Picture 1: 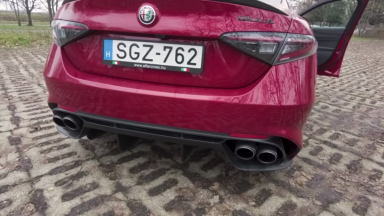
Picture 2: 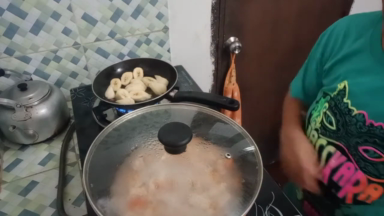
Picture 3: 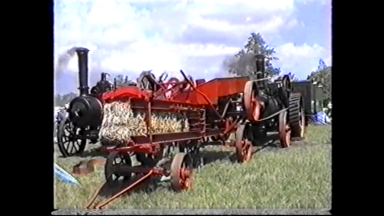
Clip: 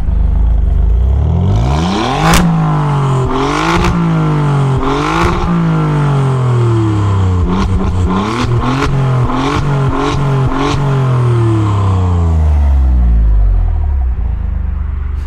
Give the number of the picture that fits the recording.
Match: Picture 1